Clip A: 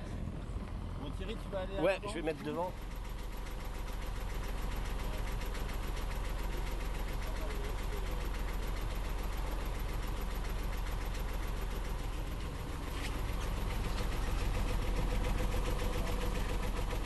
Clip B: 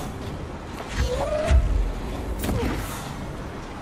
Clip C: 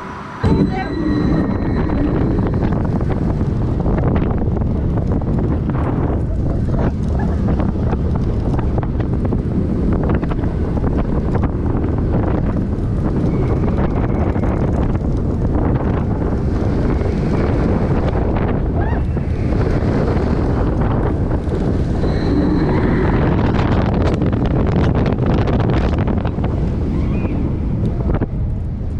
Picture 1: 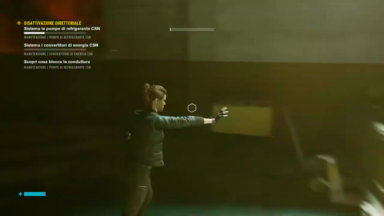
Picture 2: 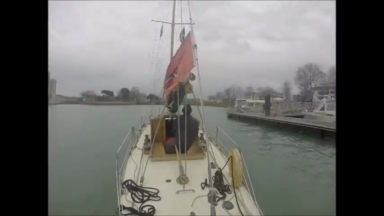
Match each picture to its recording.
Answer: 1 B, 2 A